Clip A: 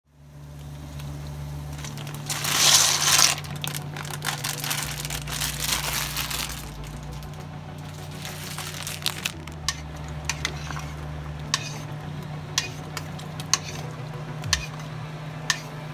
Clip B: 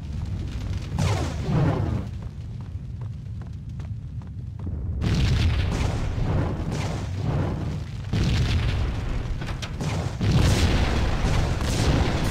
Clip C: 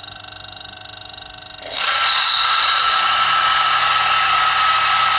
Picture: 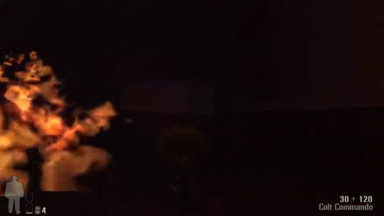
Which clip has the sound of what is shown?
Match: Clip B